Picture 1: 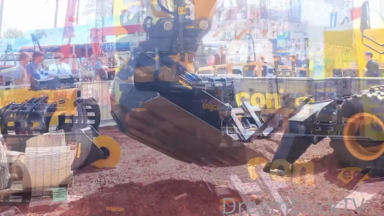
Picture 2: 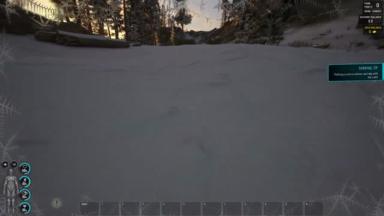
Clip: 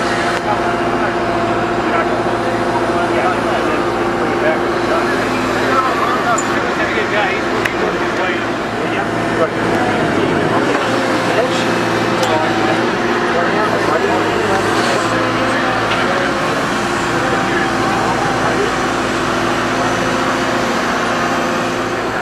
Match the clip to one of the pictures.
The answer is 1